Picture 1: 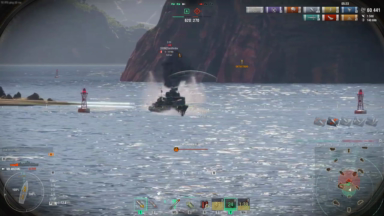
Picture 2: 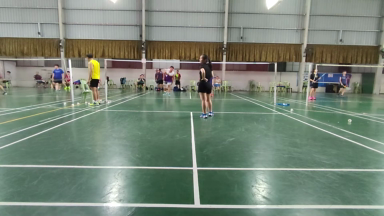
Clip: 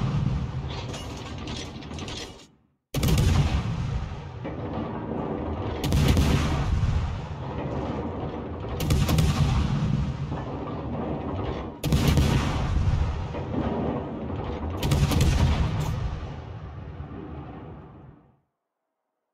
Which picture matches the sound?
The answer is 1